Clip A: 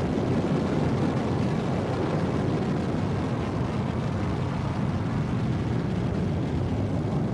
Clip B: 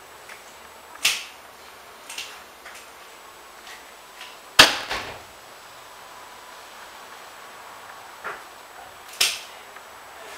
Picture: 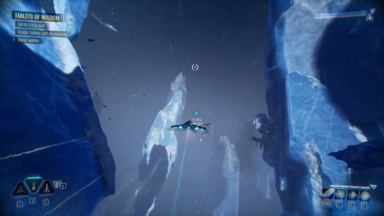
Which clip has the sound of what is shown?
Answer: A